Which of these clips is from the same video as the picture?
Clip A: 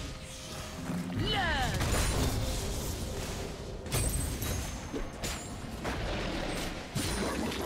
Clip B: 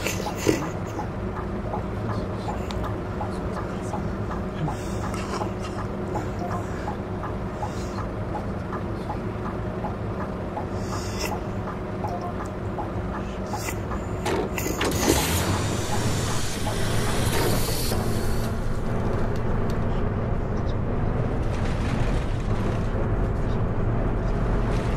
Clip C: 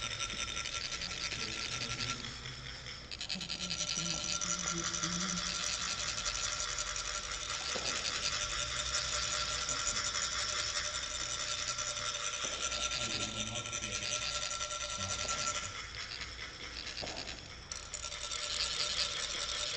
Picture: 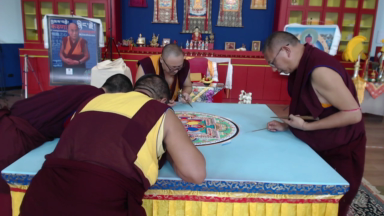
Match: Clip C